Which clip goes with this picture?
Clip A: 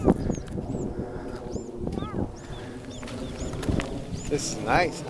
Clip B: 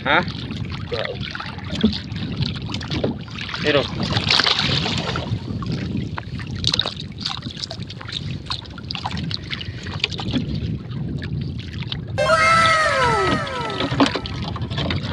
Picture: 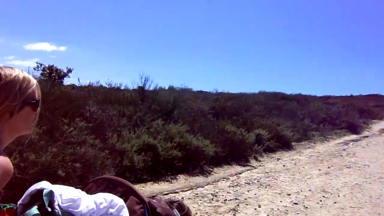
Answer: A